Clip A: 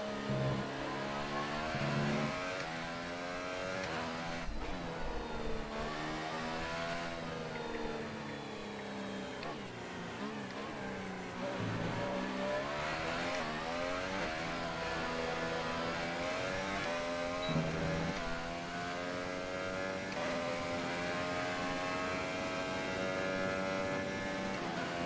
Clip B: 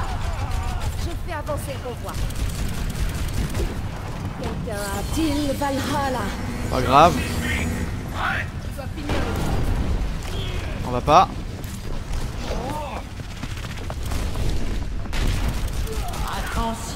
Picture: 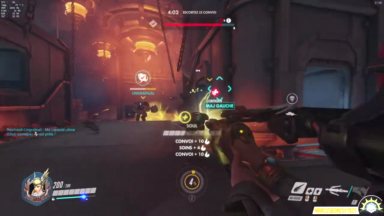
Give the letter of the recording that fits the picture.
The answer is B